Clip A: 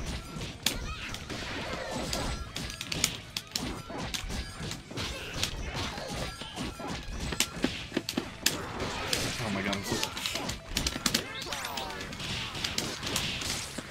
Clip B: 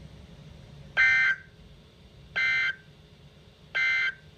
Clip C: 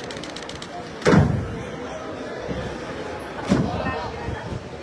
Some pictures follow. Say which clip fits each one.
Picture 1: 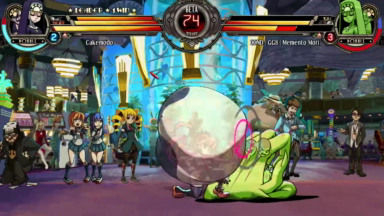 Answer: A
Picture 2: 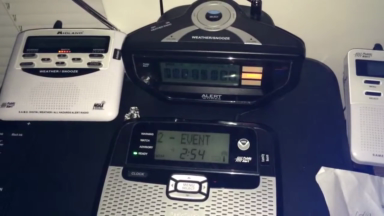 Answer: B